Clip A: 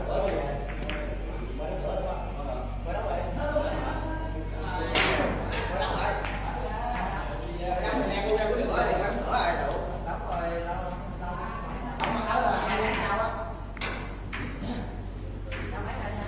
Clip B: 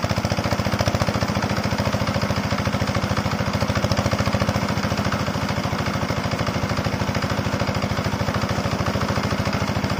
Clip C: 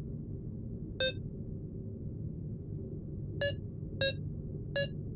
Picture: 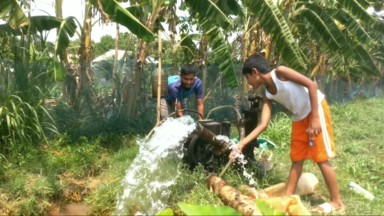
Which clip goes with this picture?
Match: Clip B